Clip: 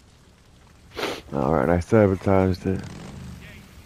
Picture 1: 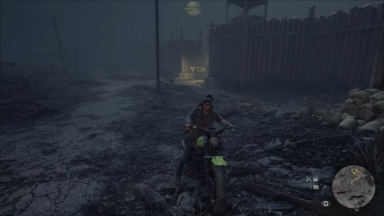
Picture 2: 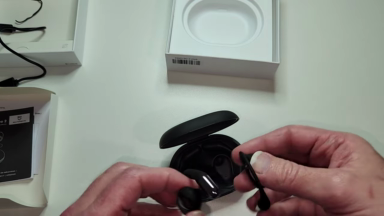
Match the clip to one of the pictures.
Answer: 1